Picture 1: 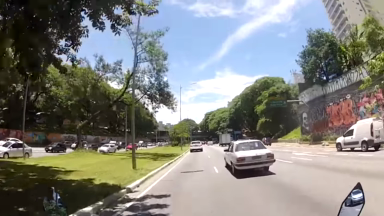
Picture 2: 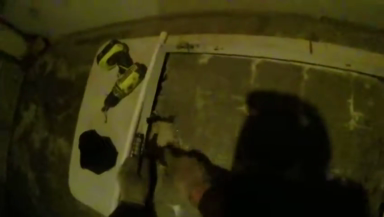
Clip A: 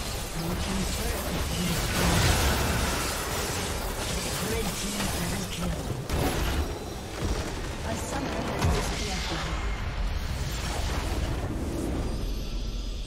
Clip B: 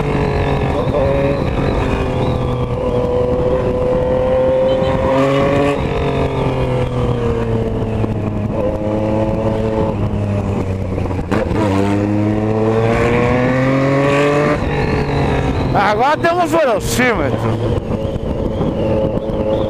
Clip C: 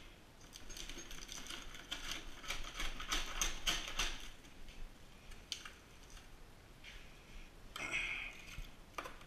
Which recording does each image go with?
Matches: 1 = B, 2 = C